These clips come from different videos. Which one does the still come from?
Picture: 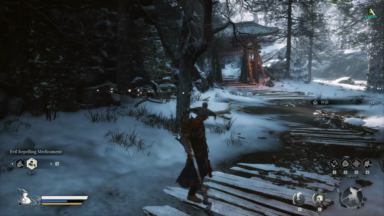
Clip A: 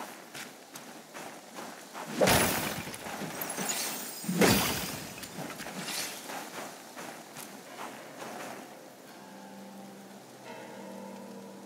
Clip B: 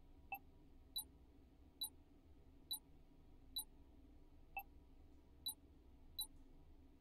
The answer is A